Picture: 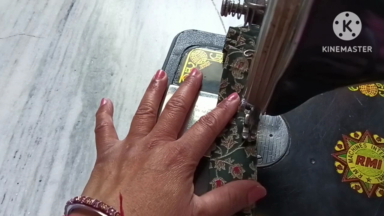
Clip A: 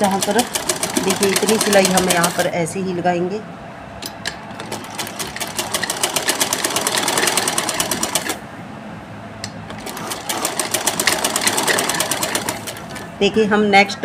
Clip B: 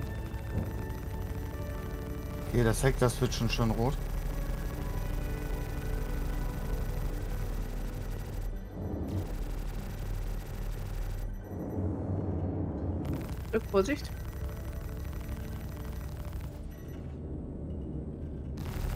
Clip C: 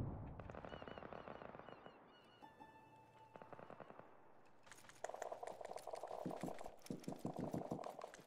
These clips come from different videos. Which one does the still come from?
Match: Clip A